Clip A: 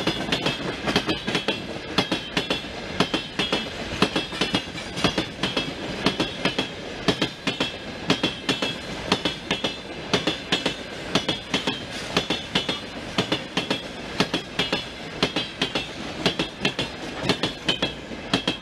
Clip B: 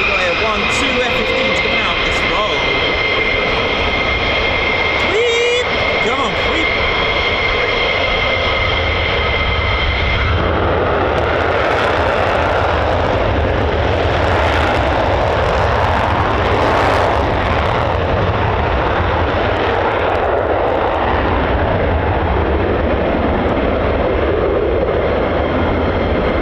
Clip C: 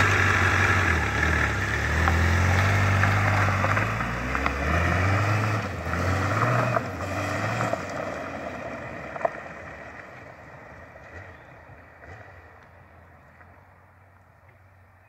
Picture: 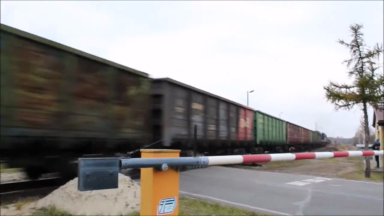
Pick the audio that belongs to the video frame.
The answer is A